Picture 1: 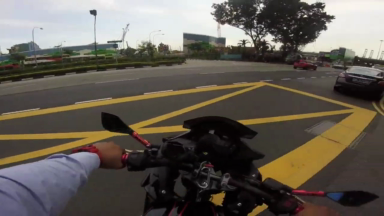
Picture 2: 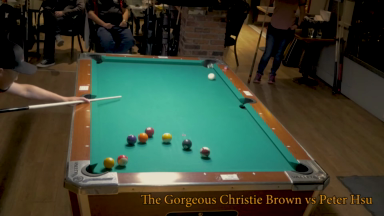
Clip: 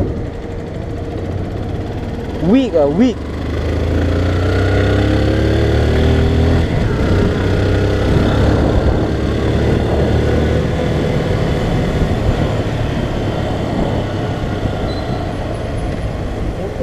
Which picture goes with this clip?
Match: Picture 1